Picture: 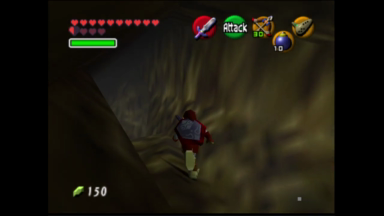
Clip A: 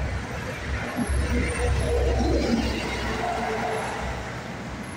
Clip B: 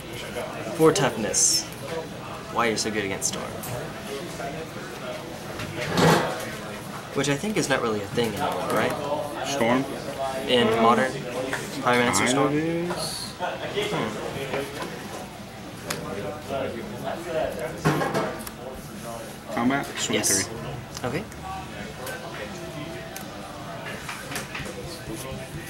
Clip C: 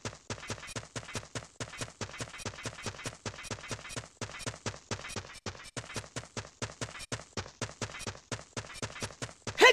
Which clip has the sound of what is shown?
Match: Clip C